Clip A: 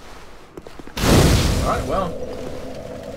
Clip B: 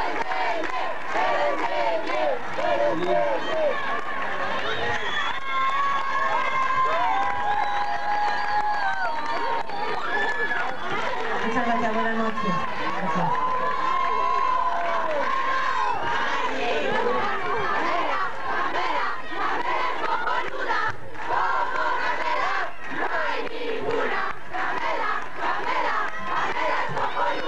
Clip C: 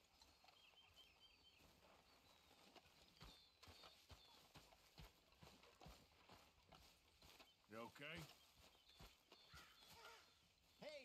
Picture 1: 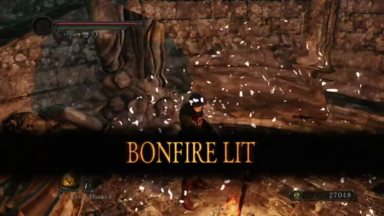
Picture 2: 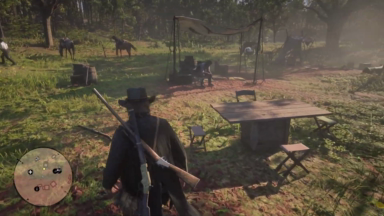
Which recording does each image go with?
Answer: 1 A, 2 C